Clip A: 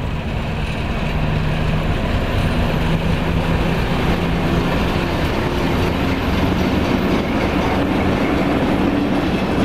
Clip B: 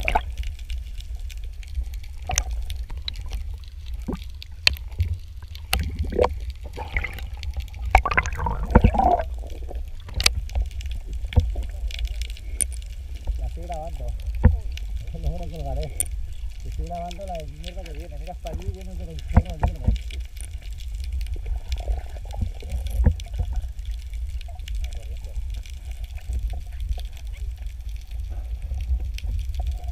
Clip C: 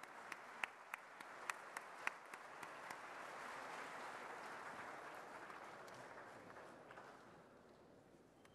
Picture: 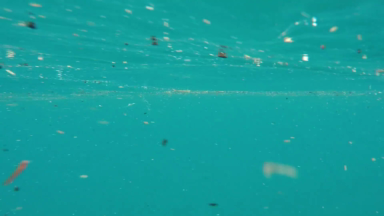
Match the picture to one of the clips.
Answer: B